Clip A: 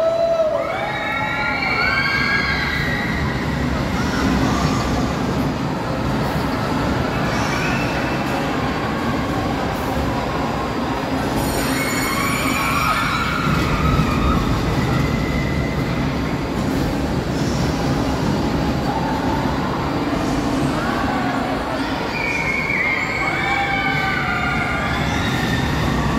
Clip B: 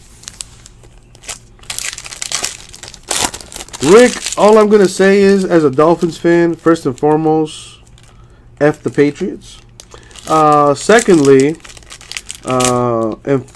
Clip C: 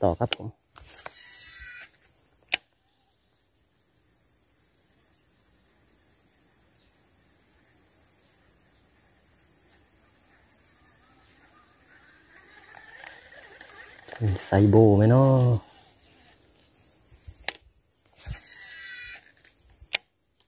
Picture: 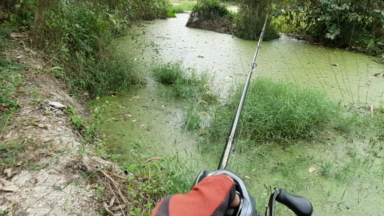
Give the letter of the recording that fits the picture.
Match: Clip C